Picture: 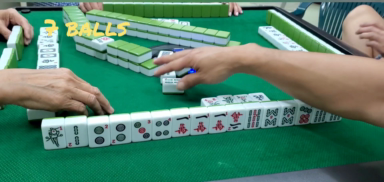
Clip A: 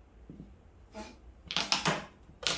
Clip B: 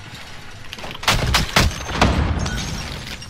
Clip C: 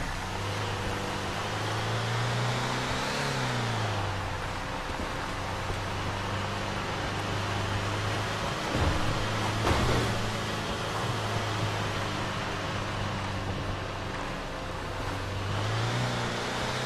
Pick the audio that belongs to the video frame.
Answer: A